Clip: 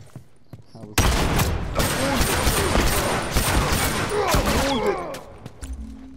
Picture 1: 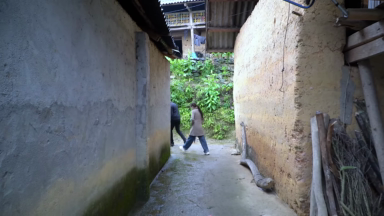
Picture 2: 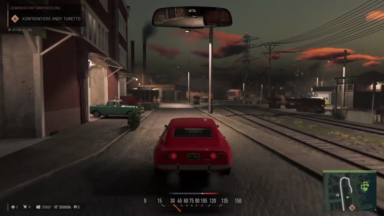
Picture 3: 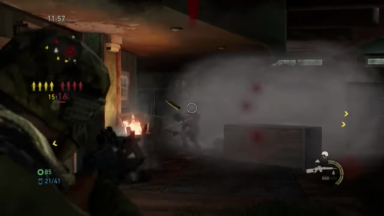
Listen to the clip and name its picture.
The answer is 3